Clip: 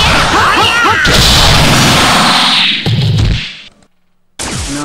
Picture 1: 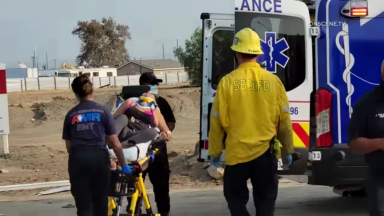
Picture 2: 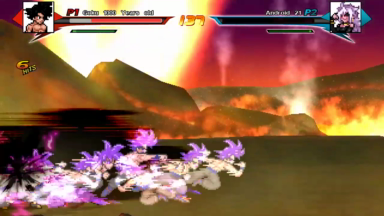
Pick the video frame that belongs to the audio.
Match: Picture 2